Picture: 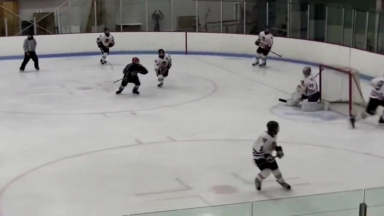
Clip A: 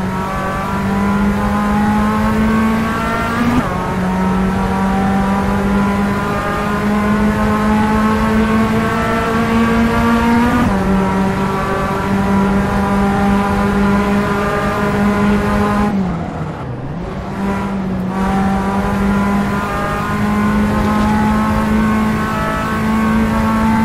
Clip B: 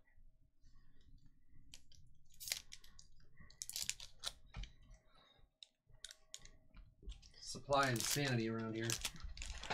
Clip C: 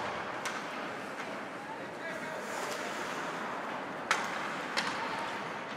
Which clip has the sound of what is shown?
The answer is C